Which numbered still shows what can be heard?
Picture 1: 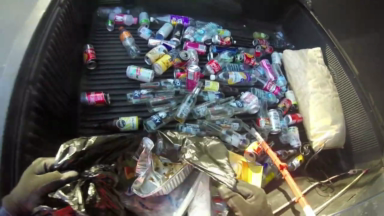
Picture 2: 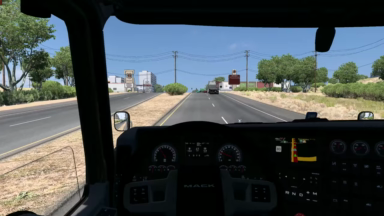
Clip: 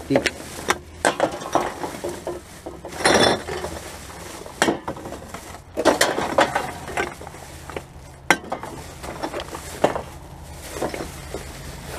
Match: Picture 1